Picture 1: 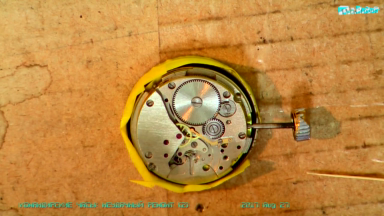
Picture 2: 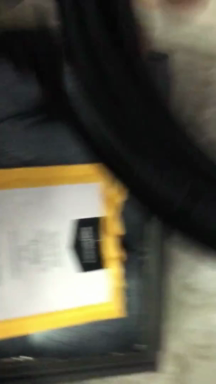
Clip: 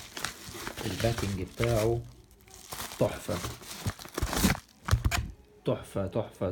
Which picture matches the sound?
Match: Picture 2